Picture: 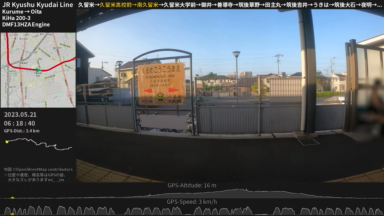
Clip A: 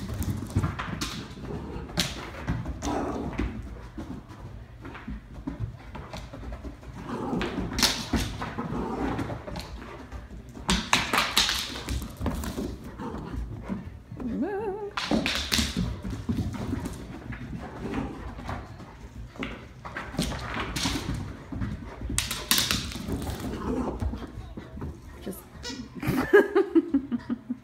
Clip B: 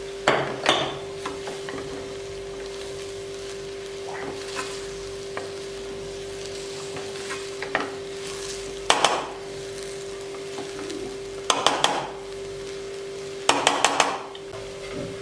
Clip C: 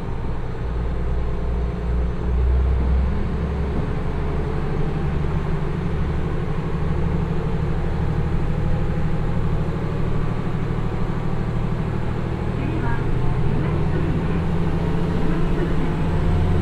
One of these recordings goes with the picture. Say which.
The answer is C